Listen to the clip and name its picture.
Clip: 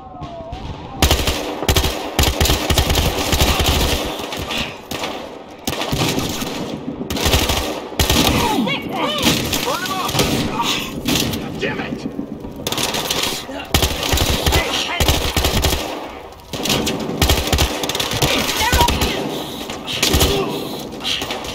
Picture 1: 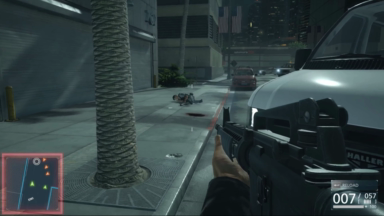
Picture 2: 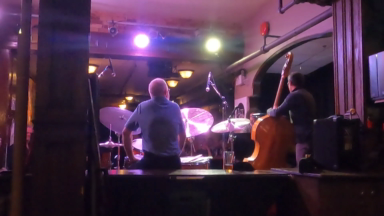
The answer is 1